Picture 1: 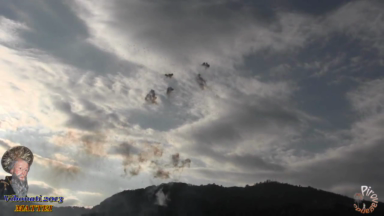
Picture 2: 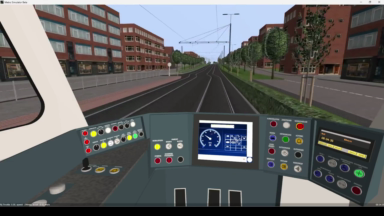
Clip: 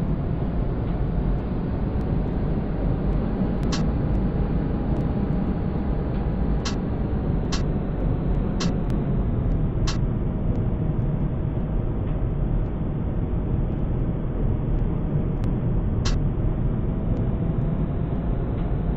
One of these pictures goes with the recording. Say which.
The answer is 2